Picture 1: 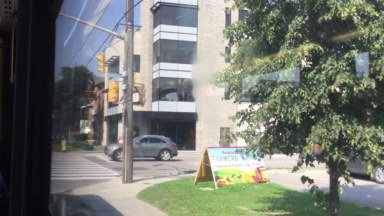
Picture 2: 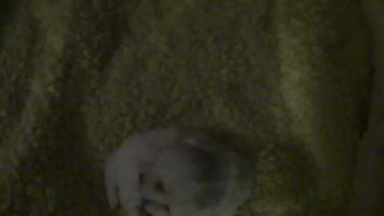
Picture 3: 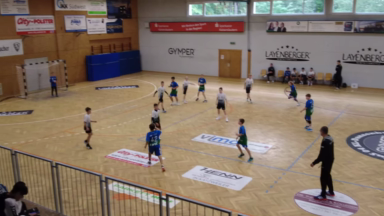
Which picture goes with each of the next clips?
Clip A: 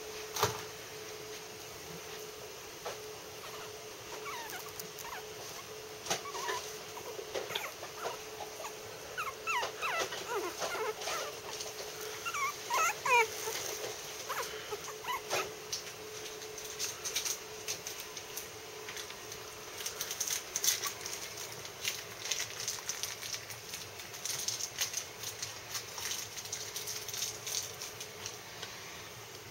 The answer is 2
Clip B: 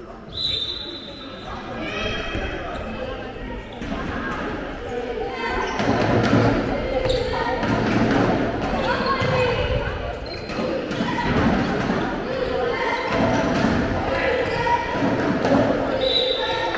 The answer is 3